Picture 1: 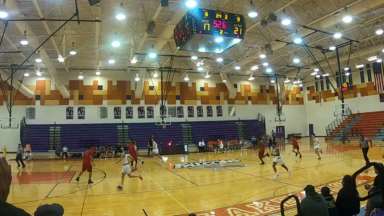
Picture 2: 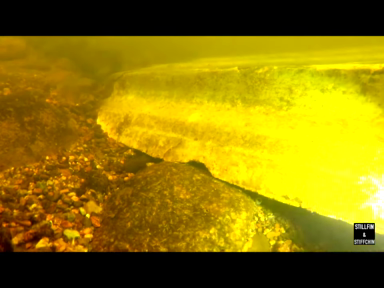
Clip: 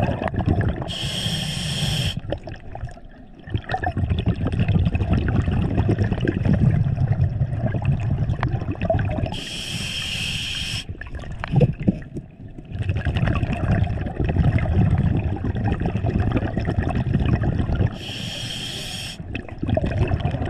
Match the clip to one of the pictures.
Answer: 2